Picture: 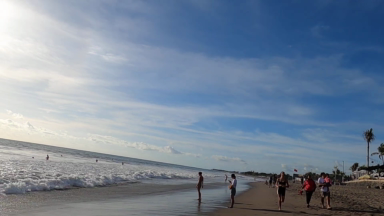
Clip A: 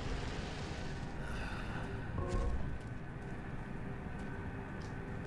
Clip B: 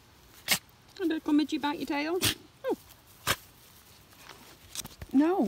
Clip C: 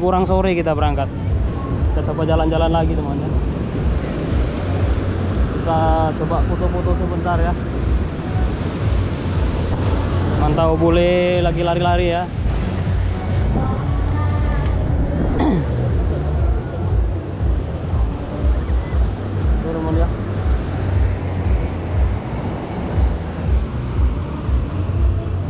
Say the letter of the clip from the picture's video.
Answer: C